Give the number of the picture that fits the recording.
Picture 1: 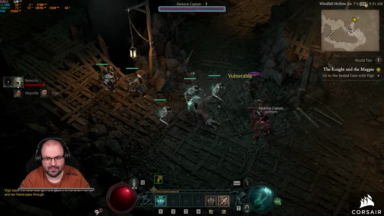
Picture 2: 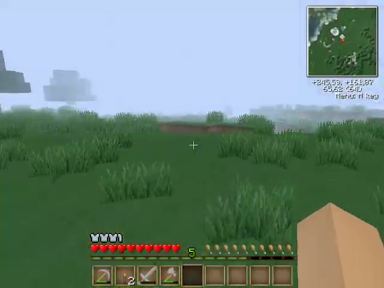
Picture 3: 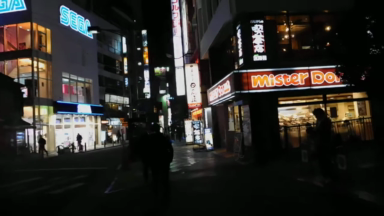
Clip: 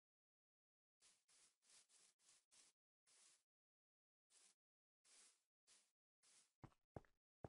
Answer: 2